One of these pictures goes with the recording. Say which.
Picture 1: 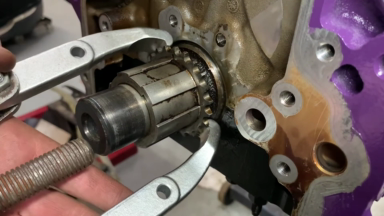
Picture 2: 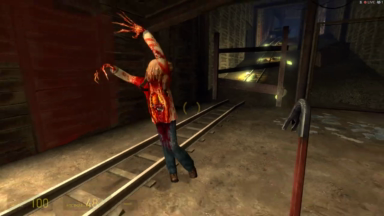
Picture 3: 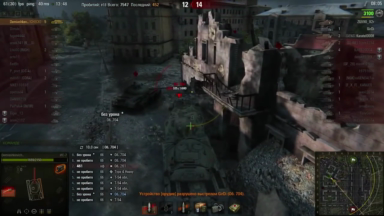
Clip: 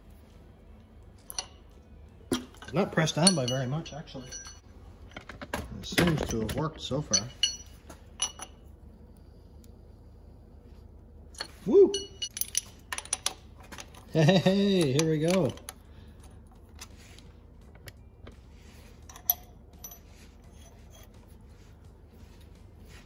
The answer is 1